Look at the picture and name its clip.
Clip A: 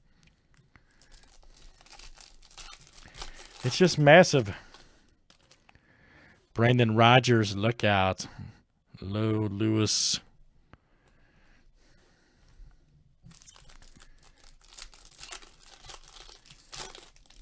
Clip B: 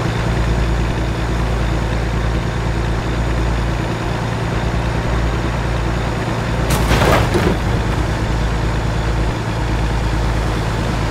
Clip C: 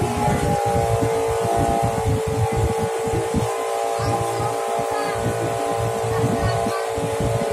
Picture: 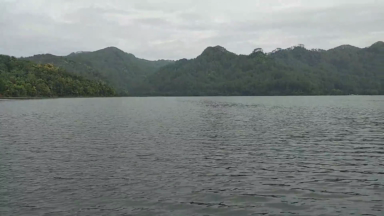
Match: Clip C